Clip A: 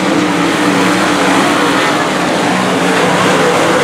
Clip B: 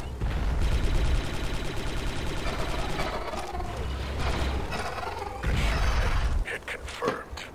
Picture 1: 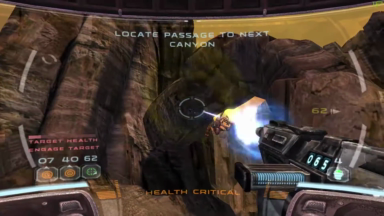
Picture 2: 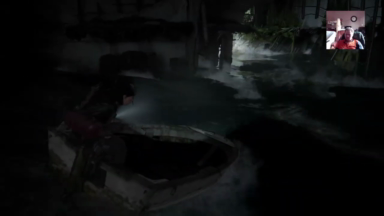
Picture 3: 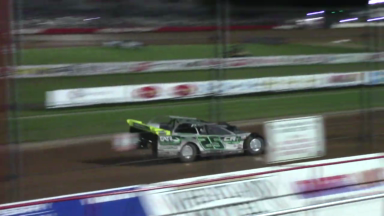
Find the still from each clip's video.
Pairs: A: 3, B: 1